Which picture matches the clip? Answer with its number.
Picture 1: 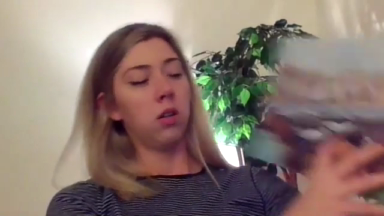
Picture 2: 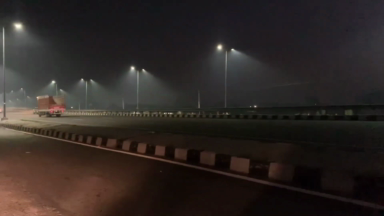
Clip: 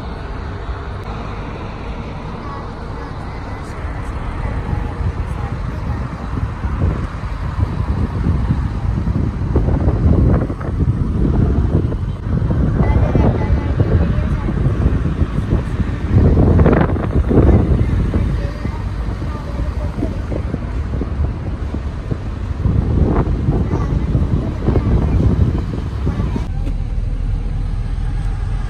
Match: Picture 2